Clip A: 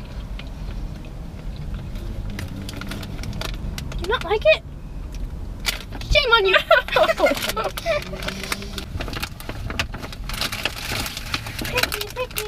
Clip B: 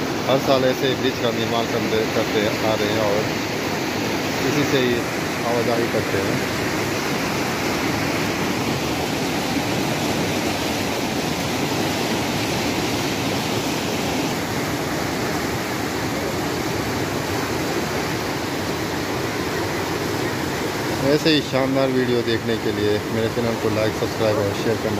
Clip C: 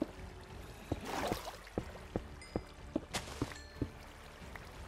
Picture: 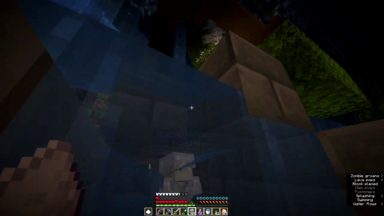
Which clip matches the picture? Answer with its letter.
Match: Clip C